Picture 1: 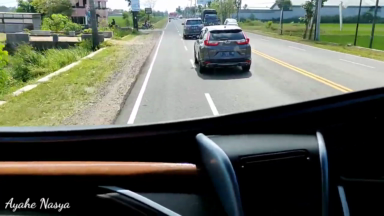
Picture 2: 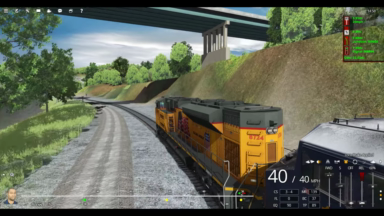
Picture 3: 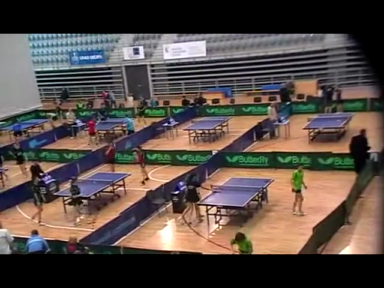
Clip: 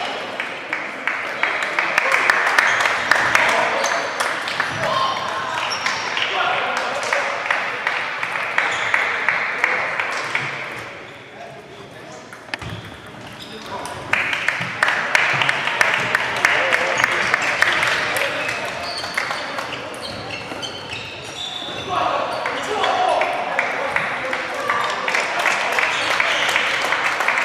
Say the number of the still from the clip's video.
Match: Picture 3